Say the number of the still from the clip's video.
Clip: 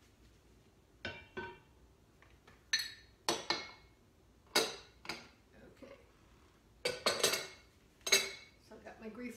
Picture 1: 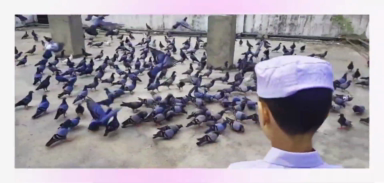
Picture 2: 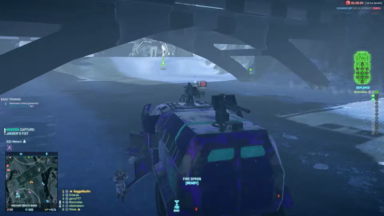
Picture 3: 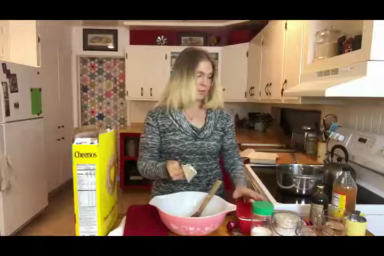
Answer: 3